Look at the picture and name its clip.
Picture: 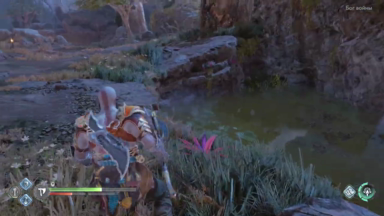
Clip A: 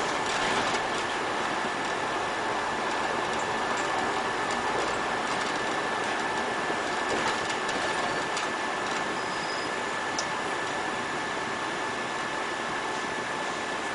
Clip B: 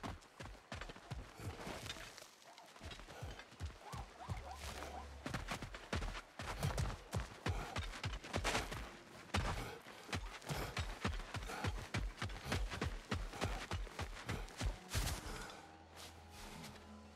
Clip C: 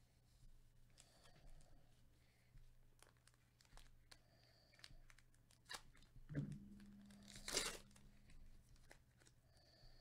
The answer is B